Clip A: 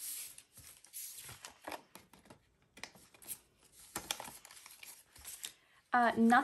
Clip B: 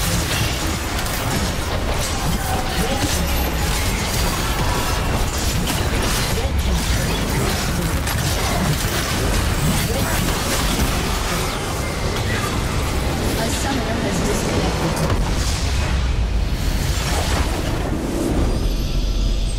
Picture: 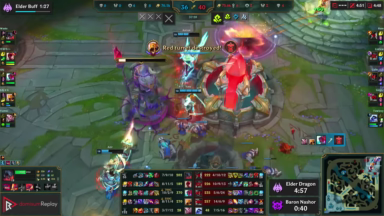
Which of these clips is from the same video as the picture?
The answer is B